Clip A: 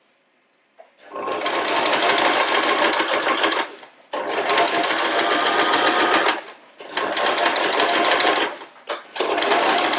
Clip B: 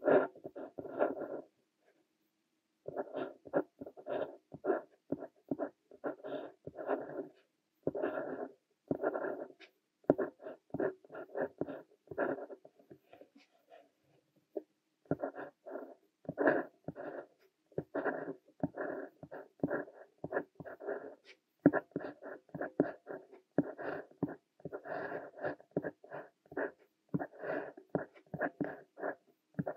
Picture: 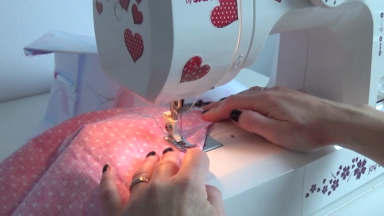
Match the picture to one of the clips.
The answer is A